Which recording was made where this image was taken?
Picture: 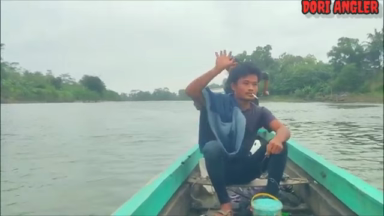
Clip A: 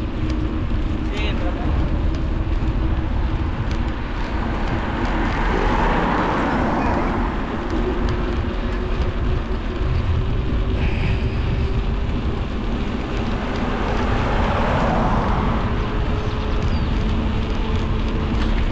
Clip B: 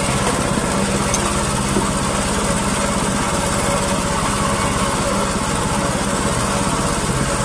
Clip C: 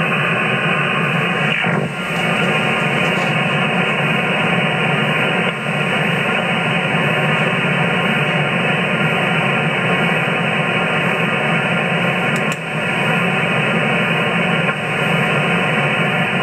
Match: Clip B